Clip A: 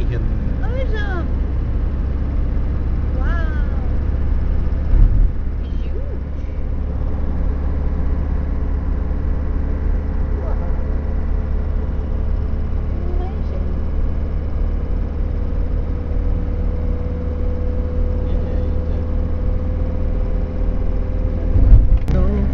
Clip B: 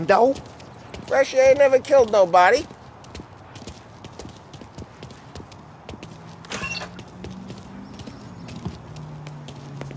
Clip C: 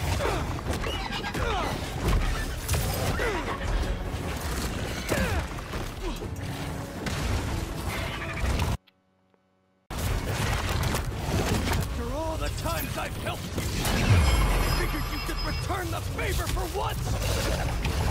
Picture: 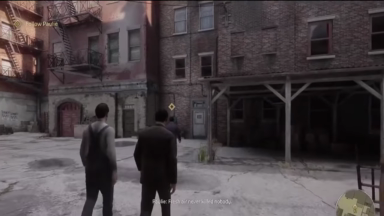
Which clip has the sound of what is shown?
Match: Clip B